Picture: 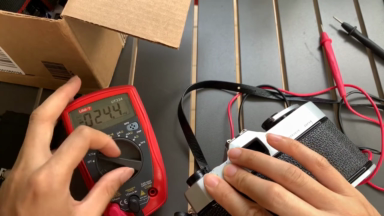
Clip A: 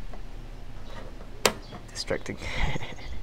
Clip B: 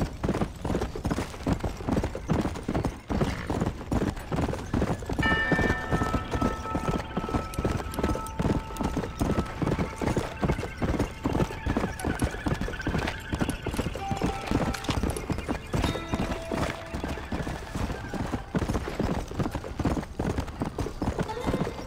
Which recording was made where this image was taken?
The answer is A